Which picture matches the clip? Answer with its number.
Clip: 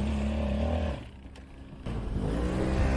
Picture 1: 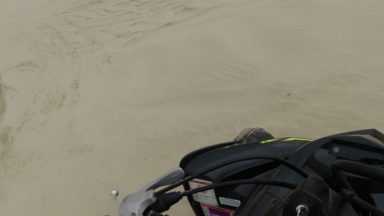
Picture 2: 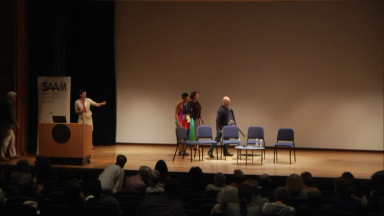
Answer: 1